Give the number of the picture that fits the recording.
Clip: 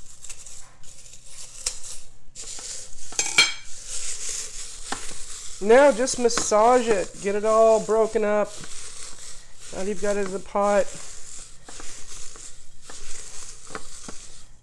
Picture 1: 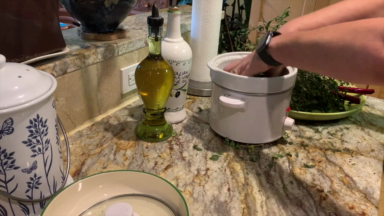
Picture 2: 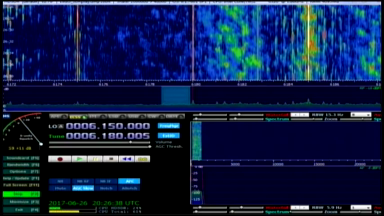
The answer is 1